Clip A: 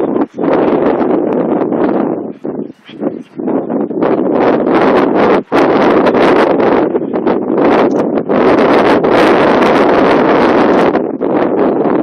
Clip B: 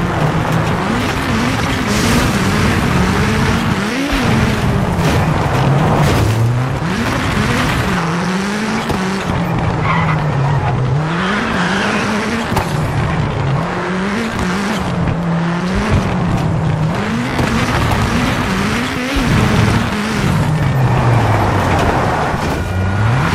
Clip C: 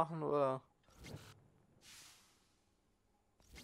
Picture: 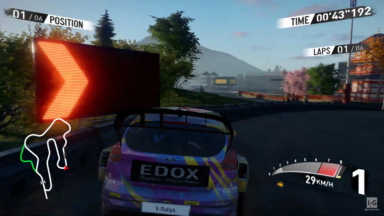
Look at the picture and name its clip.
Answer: B